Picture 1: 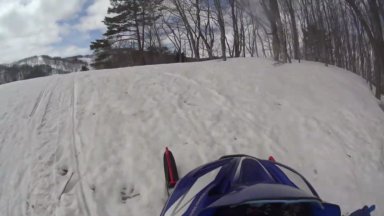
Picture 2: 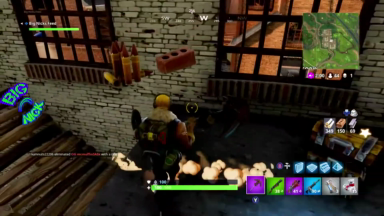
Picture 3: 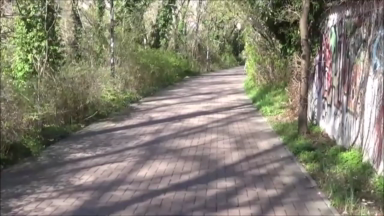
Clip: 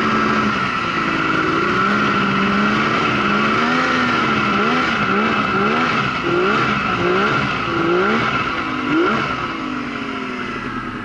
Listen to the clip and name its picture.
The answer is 1